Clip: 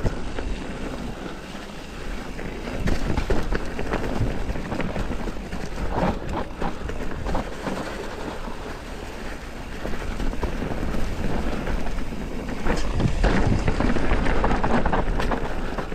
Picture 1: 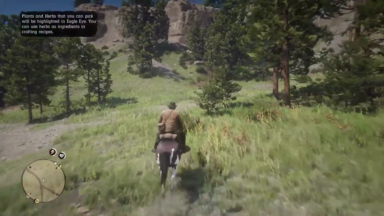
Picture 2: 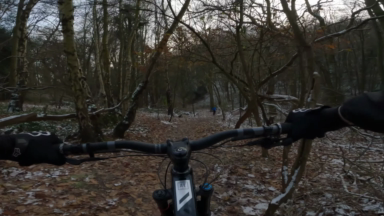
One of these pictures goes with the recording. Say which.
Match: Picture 2